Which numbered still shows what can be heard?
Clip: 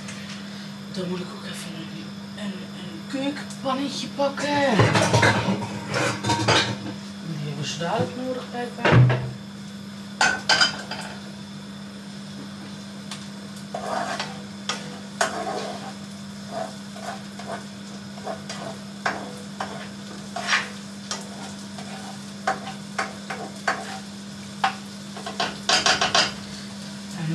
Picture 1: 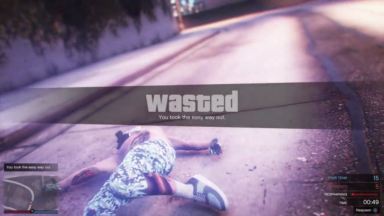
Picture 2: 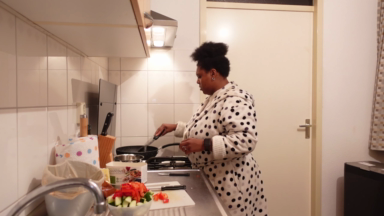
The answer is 2